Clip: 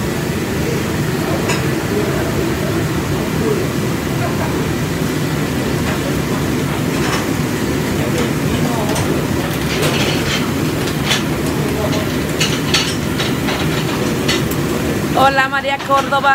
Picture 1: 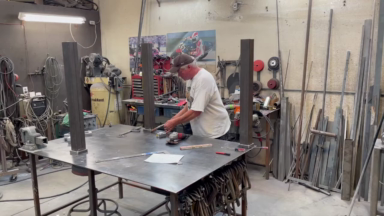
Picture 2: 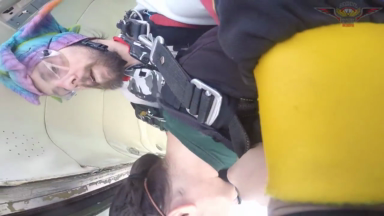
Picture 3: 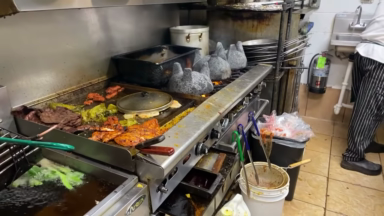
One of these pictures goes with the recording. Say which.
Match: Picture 3